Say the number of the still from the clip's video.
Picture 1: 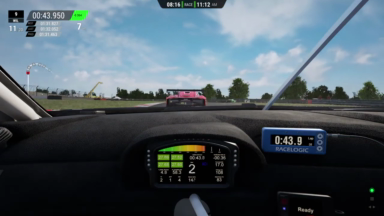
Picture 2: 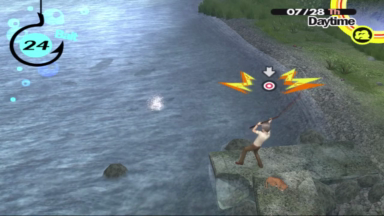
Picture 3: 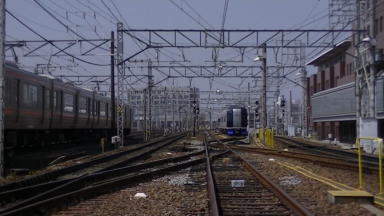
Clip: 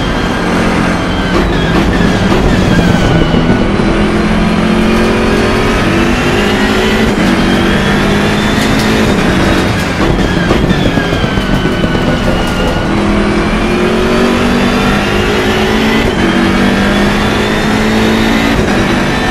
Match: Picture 1